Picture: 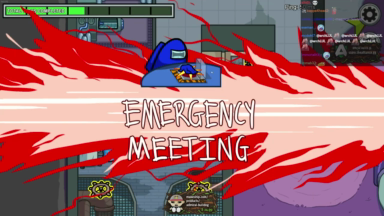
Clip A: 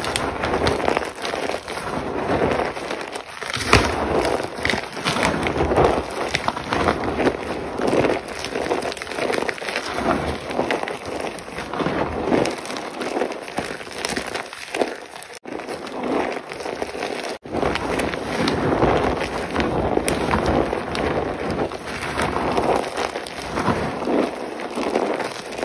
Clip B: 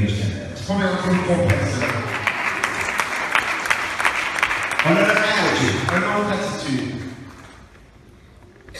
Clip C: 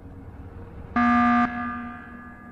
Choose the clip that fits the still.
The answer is C